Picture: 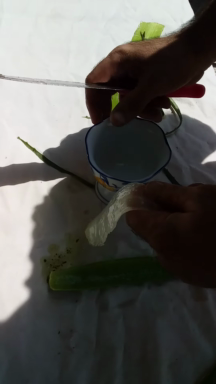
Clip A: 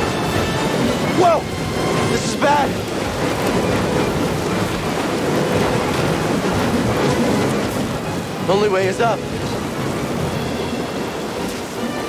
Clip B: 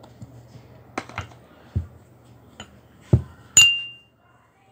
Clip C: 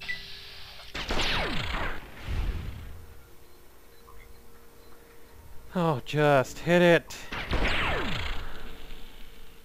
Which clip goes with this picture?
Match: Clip B